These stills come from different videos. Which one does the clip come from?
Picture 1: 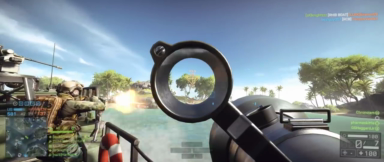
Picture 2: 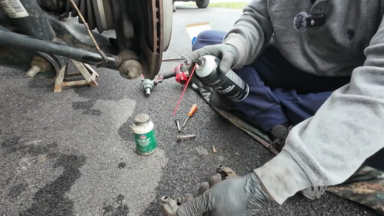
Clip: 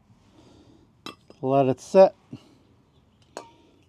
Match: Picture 2